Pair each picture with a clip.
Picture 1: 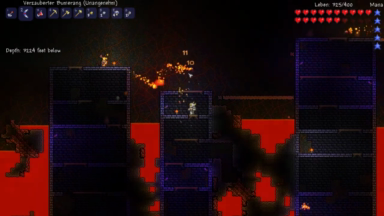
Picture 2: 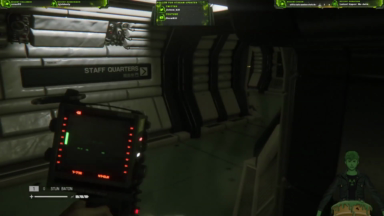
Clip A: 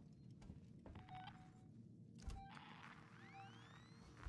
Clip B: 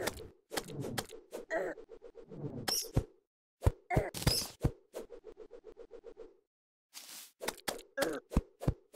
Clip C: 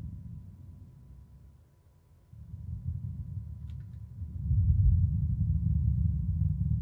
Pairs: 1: B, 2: A